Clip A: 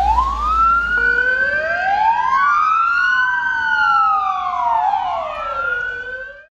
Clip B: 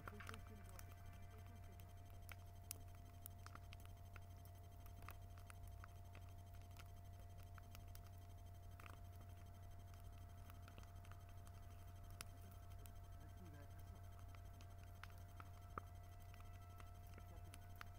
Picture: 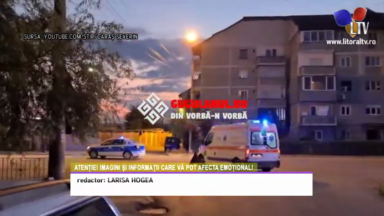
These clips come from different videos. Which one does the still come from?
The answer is A